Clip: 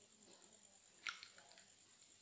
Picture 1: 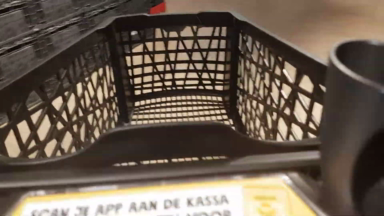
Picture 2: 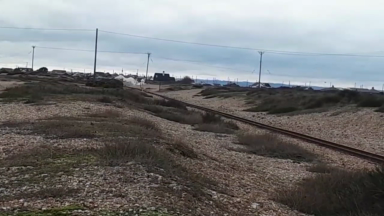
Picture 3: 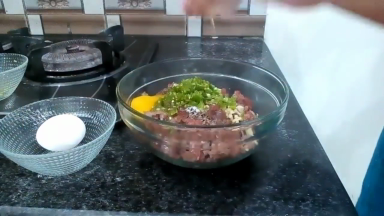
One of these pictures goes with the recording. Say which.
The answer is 3